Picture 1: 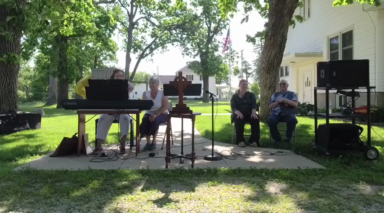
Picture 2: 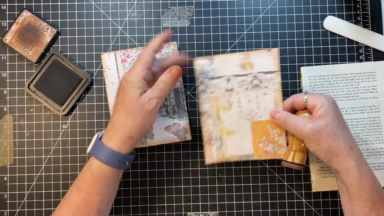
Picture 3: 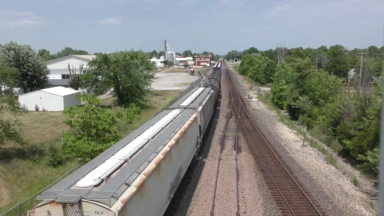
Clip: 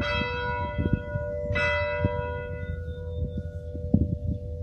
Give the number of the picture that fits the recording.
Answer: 1